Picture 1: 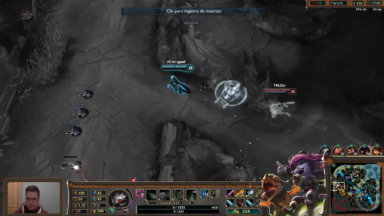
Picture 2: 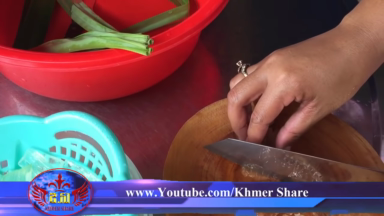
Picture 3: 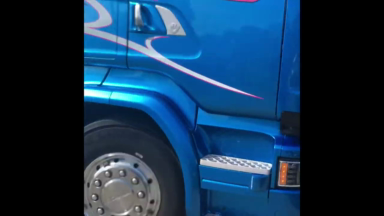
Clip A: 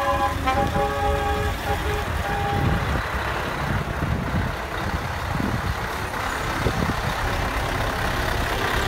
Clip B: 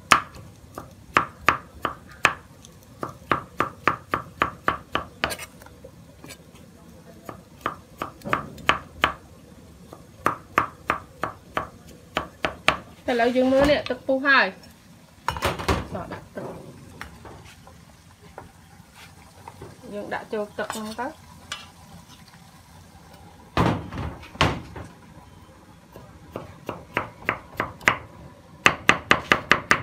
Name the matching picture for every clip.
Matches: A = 3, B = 2